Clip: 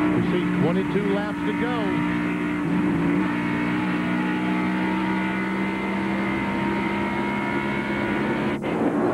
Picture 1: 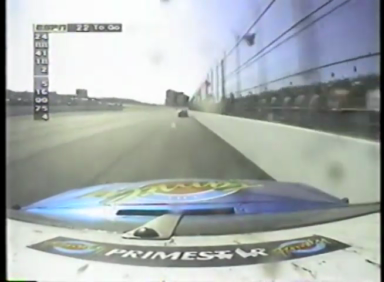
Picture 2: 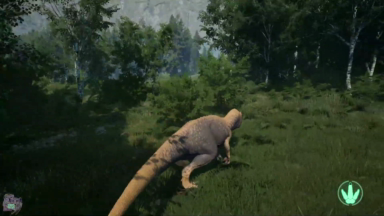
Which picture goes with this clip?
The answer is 1